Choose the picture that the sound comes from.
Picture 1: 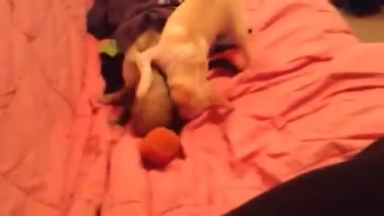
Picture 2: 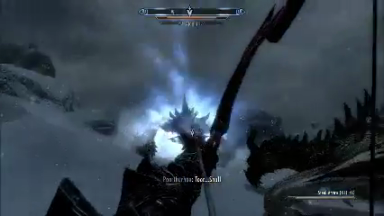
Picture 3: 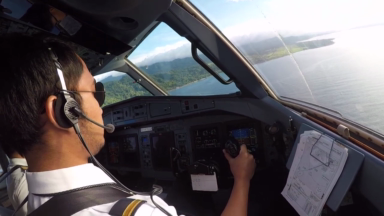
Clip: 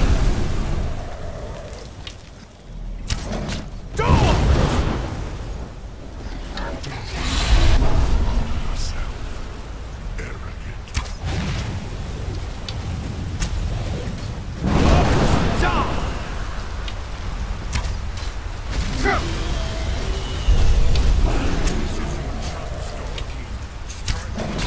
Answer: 2